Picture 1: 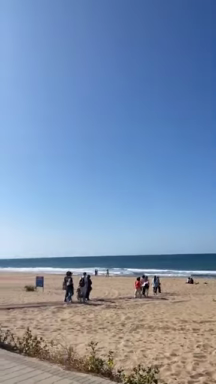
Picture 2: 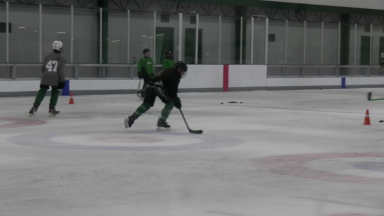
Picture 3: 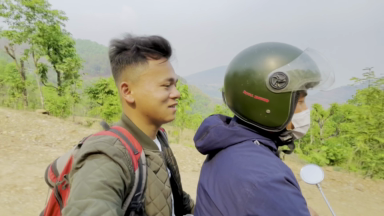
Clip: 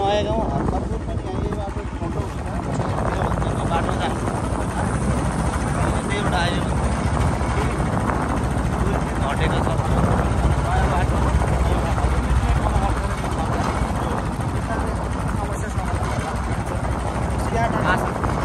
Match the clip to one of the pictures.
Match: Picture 3